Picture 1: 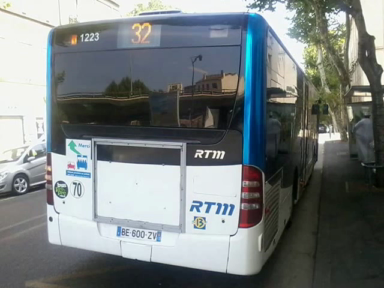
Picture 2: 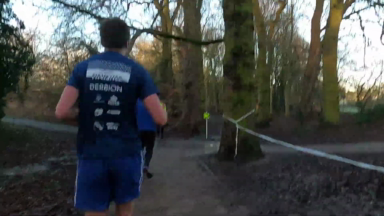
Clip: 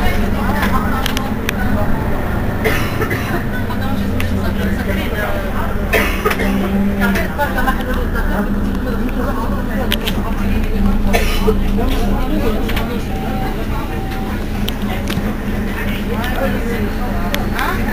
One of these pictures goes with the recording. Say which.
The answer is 1